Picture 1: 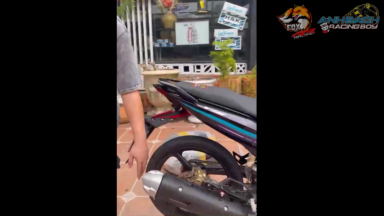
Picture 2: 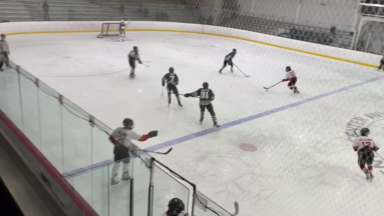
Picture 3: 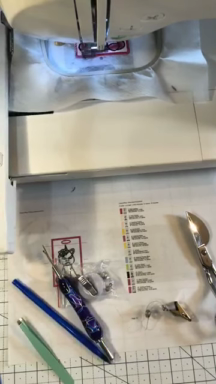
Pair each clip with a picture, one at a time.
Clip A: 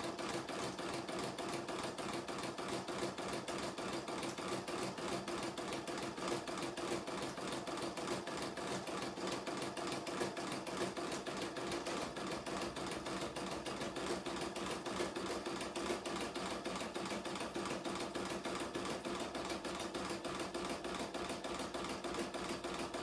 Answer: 3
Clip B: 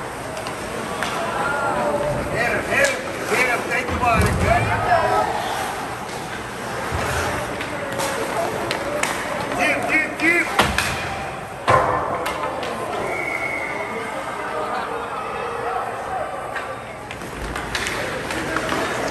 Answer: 2